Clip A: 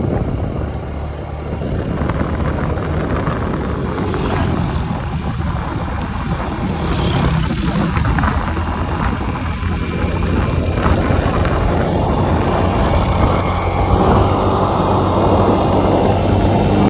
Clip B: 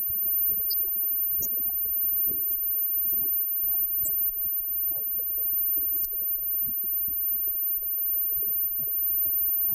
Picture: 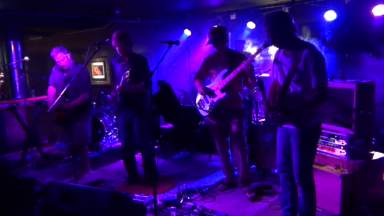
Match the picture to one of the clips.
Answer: B